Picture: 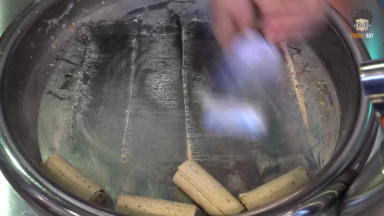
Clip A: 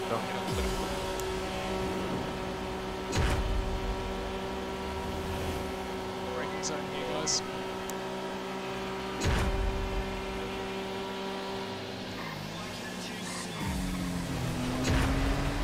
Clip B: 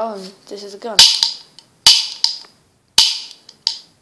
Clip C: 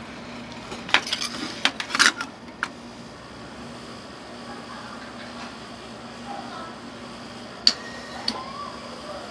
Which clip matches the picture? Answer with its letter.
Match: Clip C